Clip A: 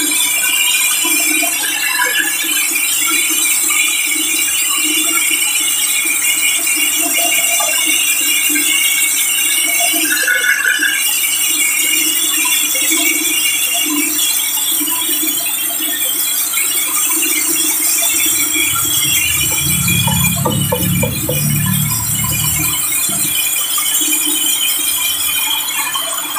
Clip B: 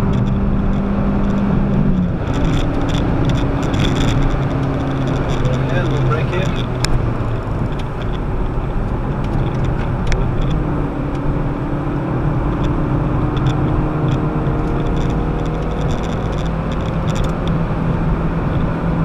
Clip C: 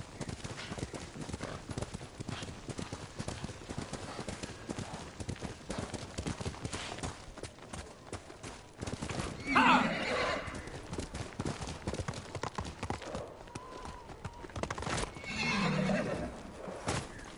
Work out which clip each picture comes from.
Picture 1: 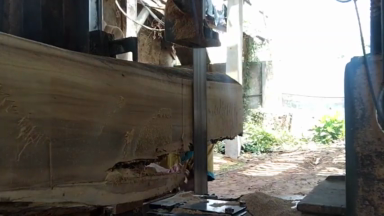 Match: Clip A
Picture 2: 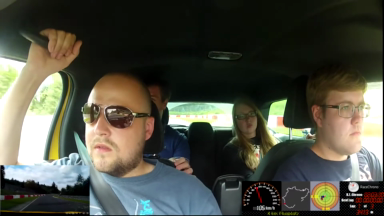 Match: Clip B